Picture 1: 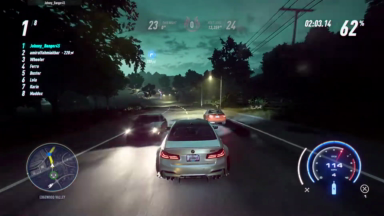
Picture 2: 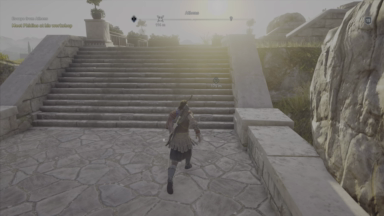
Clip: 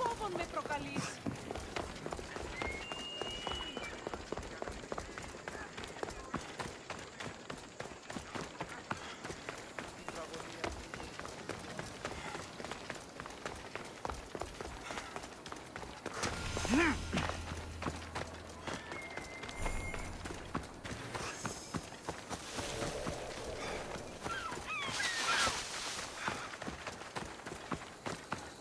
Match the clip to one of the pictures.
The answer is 2